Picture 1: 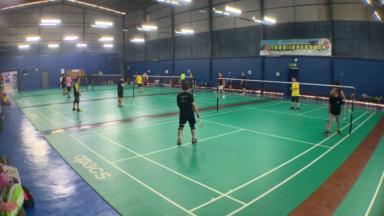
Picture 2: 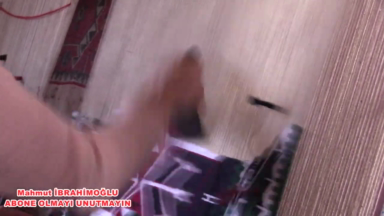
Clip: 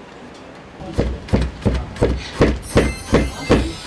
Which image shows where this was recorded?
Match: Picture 2